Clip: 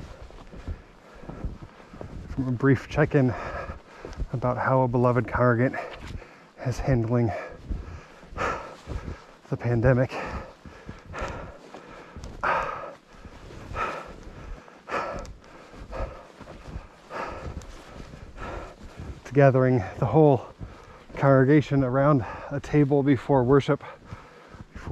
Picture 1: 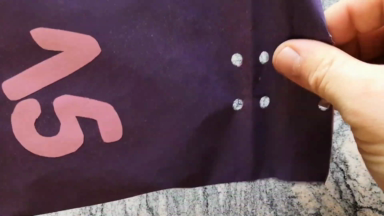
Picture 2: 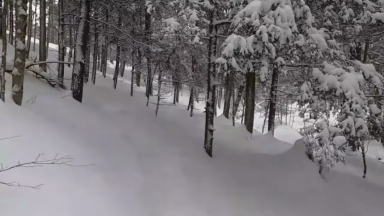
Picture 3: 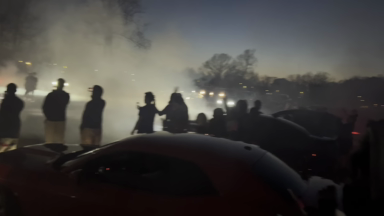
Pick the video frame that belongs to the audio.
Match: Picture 2